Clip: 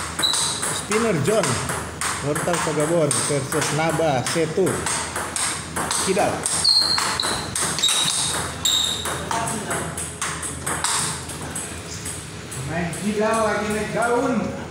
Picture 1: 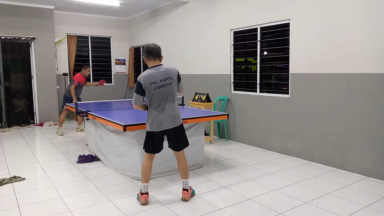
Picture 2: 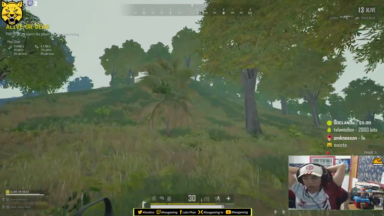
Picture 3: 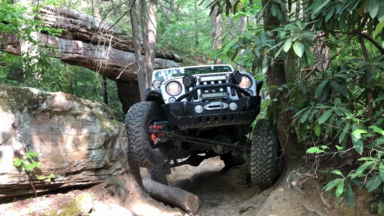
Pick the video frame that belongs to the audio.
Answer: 1